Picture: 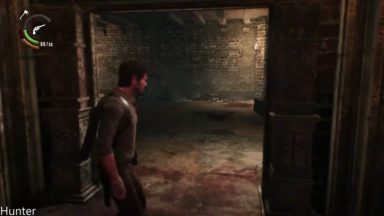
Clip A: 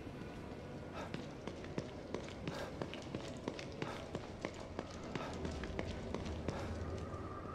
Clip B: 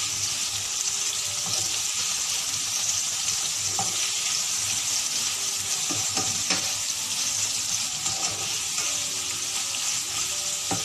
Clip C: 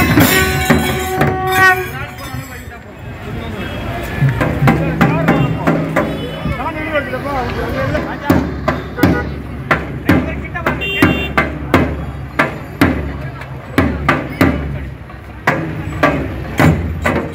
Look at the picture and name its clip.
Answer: A